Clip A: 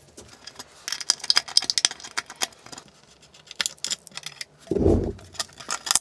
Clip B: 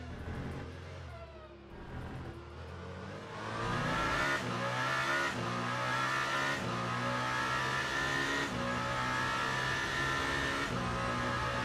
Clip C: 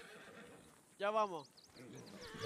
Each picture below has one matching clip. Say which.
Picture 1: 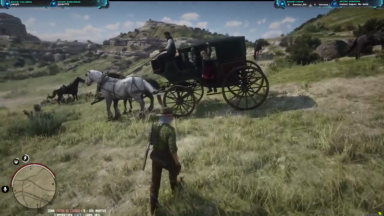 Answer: C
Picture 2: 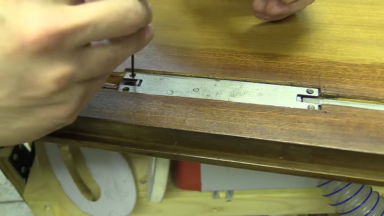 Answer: A